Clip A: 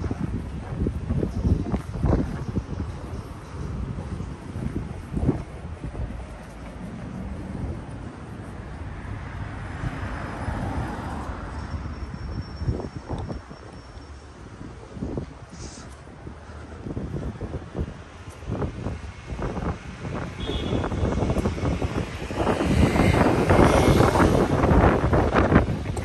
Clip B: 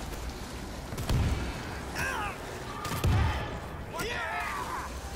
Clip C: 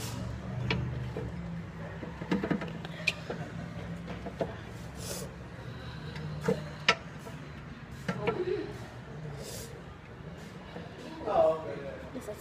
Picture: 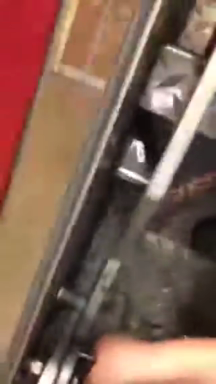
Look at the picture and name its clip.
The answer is C